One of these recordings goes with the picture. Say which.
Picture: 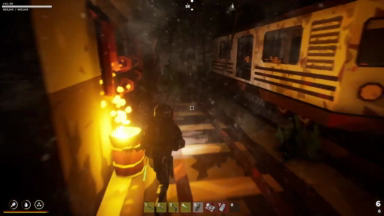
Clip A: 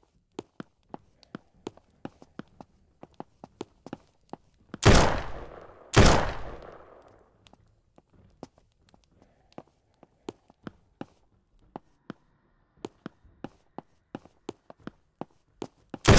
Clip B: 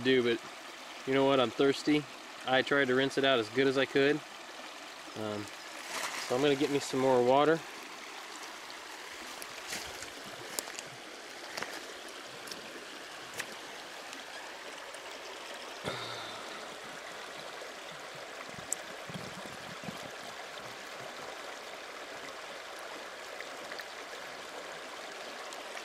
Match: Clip A